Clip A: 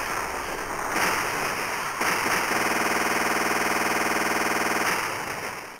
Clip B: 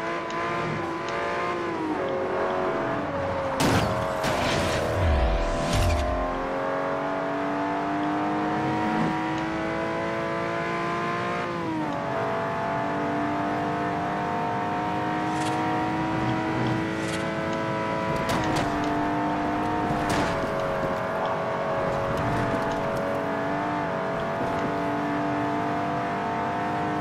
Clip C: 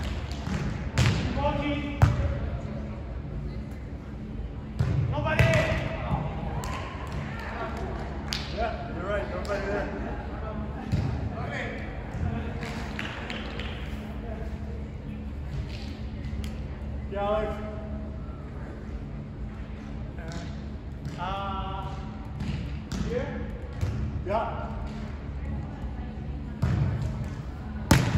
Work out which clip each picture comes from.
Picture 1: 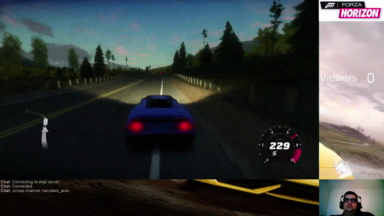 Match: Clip B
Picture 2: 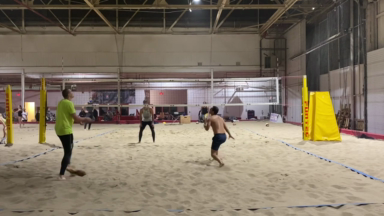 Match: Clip C